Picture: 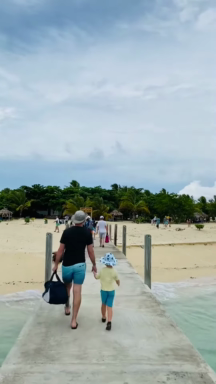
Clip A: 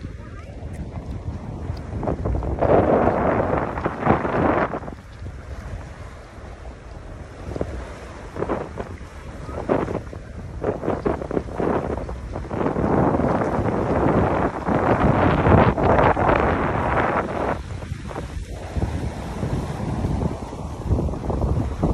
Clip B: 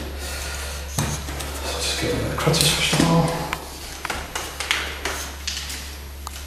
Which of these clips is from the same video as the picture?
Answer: A